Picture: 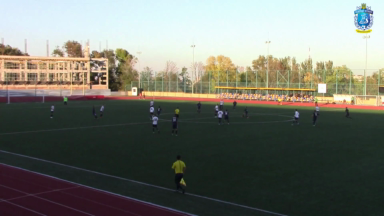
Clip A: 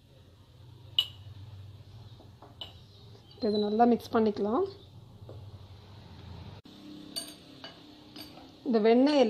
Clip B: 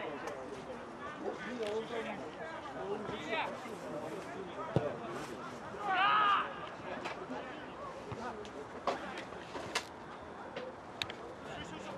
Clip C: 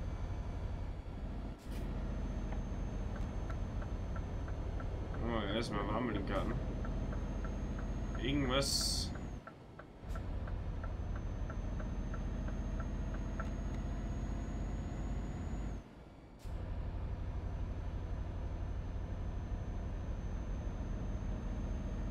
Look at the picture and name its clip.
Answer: B